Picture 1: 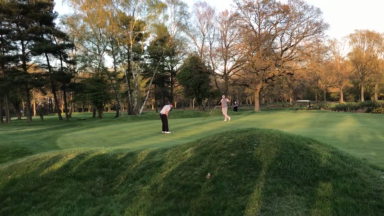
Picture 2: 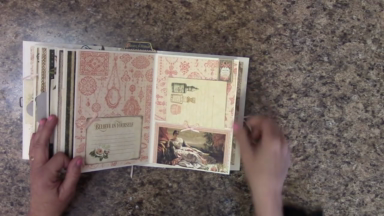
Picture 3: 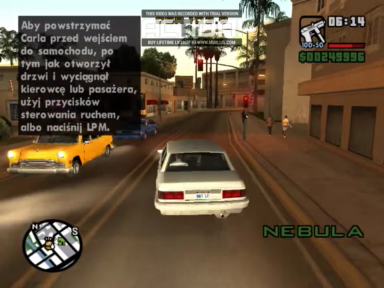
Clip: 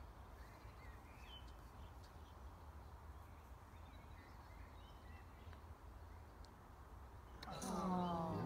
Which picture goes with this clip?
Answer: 1